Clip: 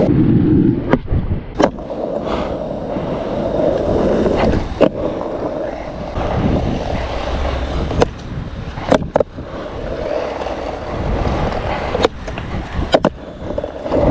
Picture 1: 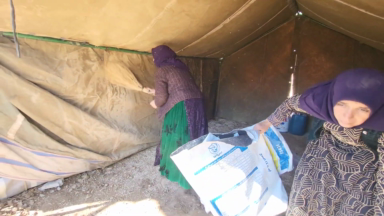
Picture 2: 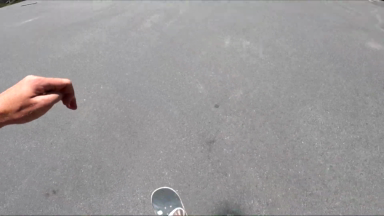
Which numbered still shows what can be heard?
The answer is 2